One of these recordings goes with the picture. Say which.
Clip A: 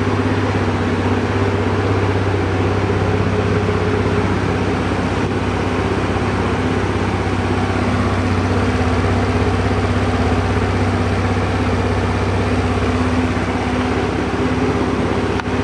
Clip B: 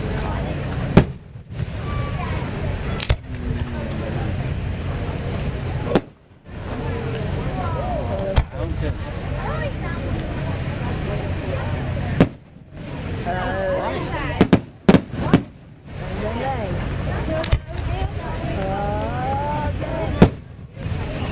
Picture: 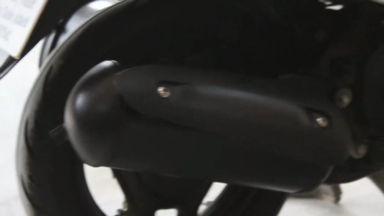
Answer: A